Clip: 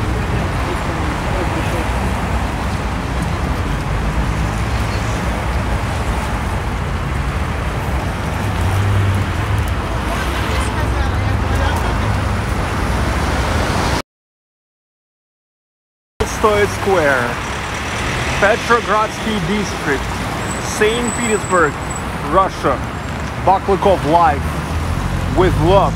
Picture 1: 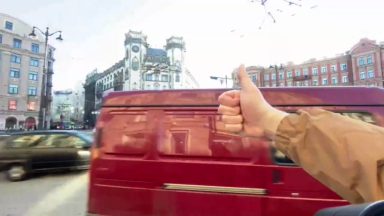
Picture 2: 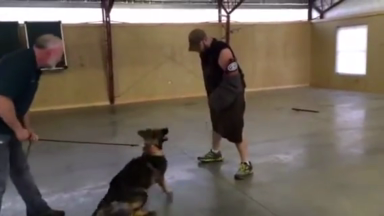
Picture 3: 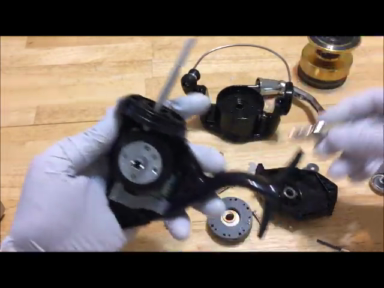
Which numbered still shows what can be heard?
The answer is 1